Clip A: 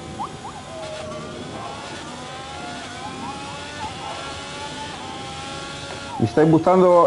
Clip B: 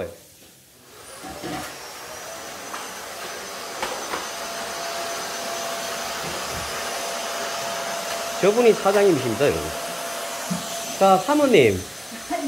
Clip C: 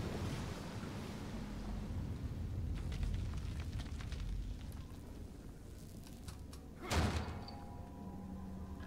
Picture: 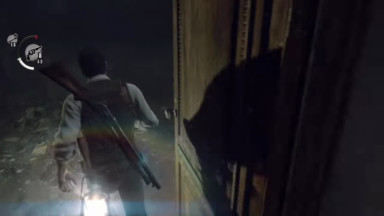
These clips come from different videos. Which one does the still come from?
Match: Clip C